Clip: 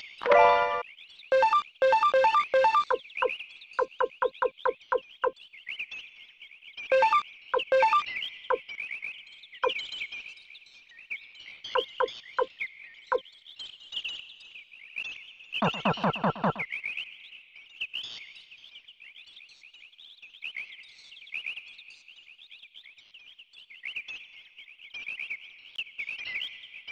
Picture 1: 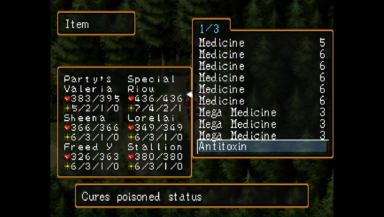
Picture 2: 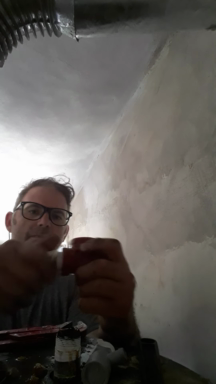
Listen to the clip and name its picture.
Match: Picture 1